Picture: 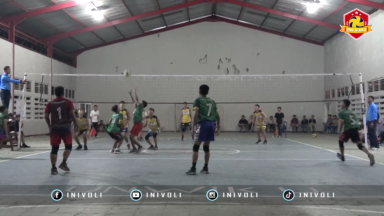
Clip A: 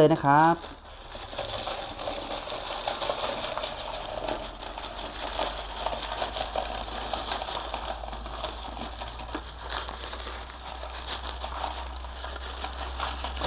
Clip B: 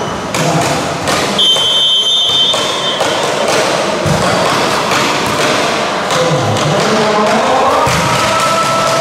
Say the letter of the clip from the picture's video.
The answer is B